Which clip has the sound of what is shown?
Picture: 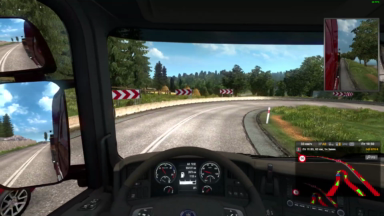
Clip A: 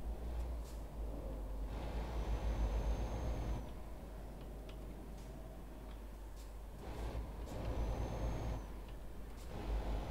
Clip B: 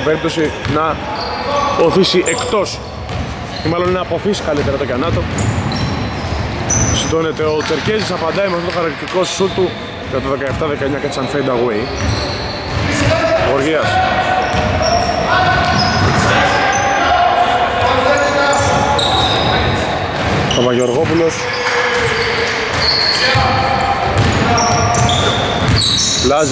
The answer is A